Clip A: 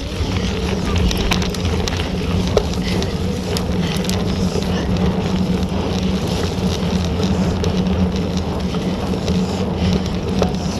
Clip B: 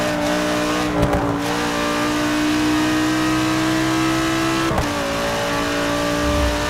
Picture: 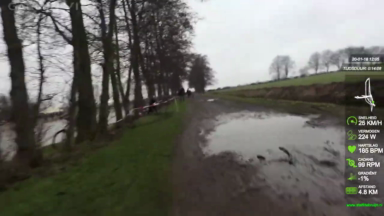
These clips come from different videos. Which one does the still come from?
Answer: A